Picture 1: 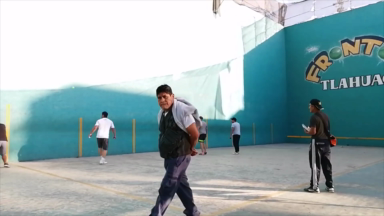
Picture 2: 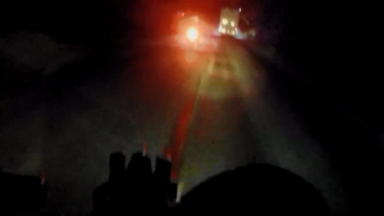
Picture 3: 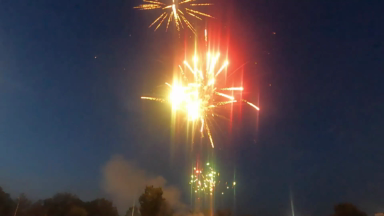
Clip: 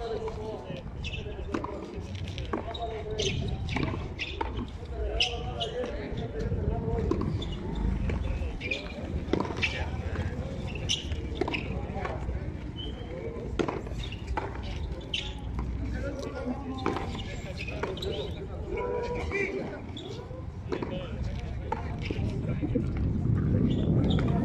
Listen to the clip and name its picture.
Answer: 1